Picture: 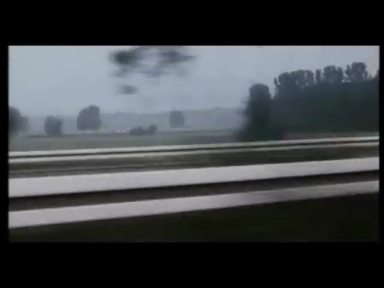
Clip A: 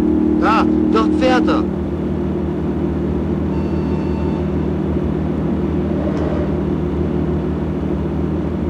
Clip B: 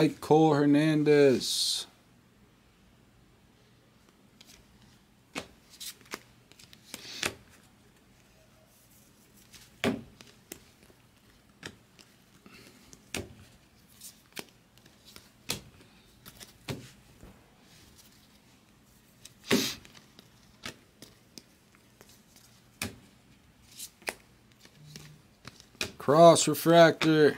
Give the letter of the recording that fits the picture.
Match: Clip A